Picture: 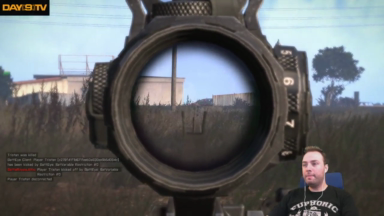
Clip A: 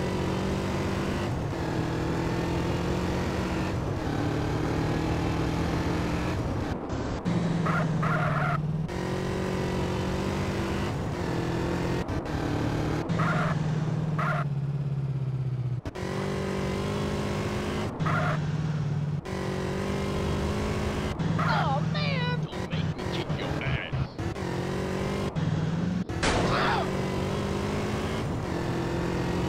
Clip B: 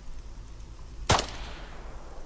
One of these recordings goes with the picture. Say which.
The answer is B